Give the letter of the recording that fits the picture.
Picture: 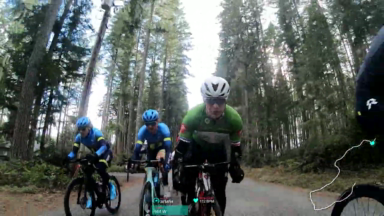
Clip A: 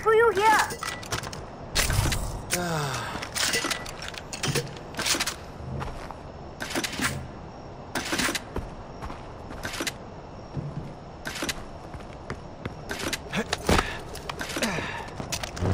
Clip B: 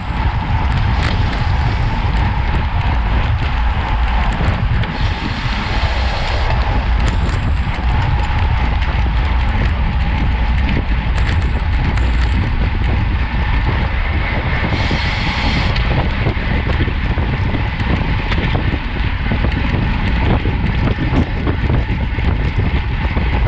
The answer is B